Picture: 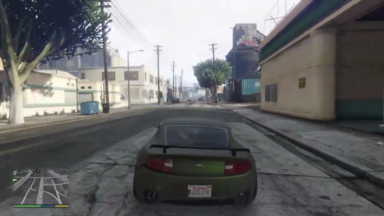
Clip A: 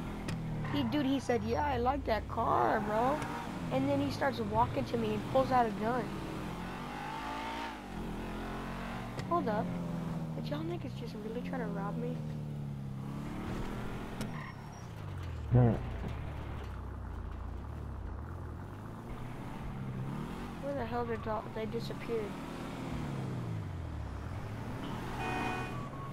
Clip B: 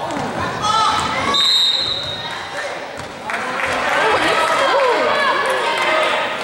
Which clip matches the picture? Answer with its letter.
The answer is A